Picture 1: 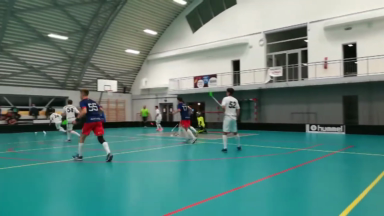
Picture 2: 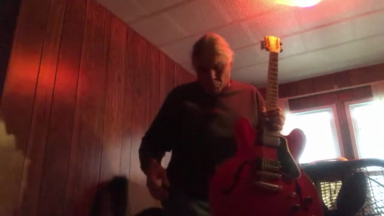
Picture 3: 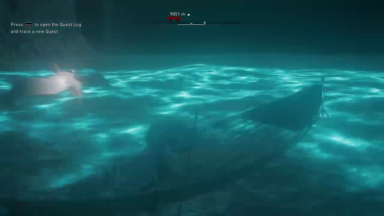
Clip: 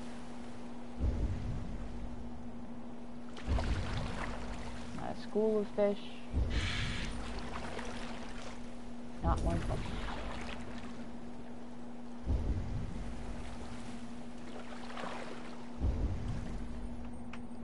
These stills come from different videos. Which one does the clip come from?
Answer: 3